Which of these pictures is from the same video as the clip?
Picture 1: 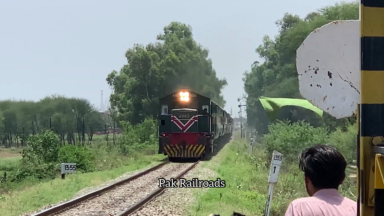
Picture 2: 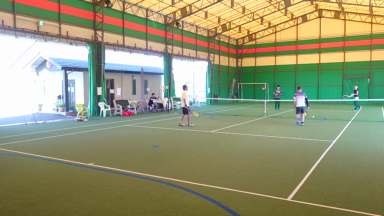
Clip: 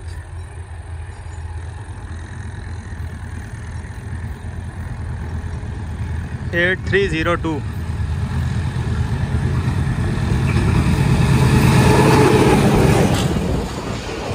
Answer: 1